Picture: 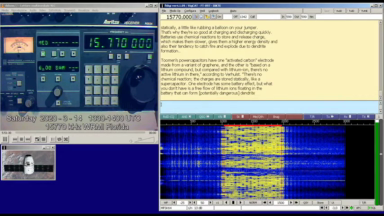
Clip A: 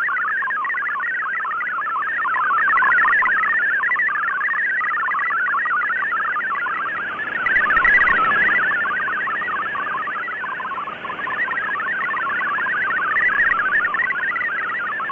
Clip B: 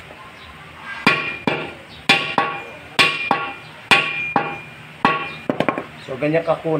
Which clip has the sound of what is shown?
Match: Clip A